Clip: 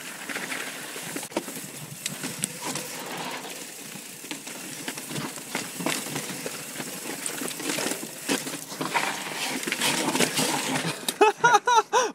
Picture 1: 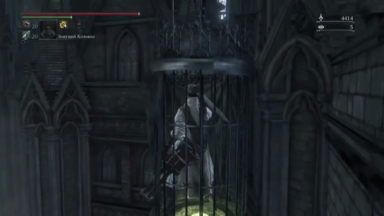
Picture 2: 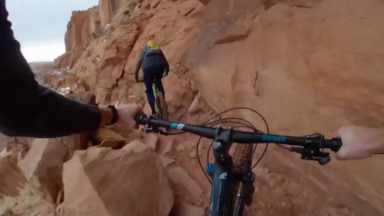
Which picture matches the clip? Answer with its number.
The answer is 2